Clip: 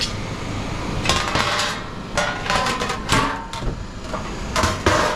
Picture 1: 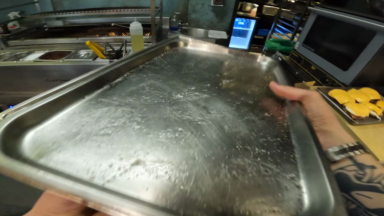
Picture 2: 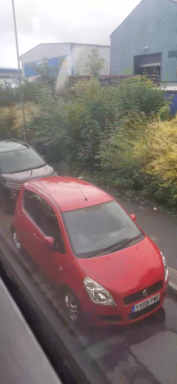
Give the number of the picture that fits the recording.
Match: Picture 1